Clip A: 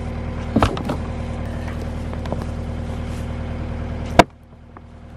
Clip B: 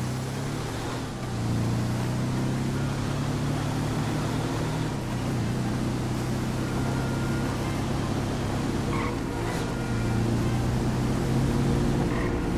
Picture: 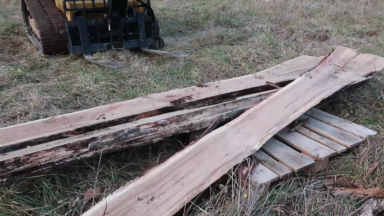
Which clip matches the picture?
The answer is A